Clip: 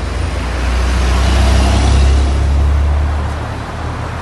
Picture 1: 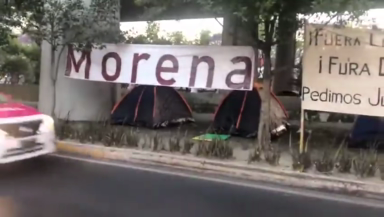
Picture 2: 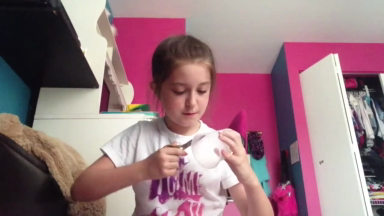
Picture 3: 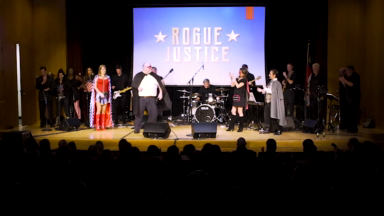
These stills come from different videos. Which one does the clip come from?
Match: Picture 1